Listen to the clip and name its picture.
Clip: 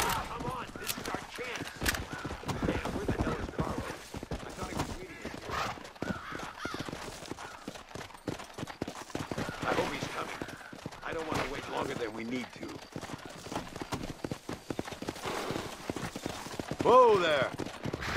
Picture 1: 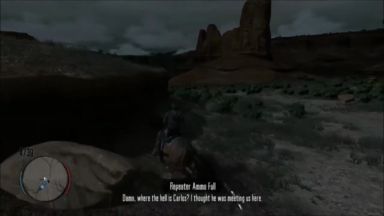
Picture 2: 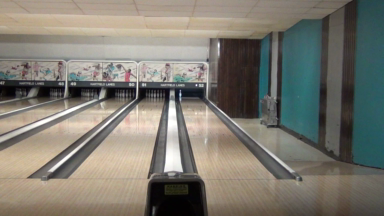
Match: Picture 1